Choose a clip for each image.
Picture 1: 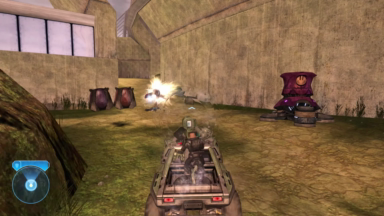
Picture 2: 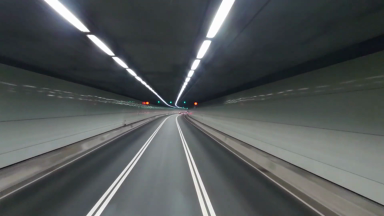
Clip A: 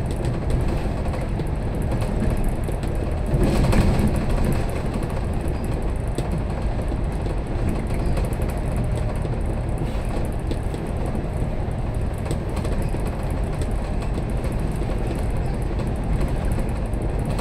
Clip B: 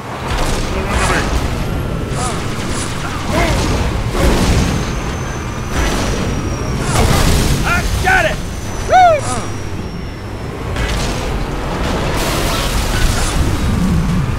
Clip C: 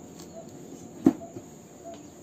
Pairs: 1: B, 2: A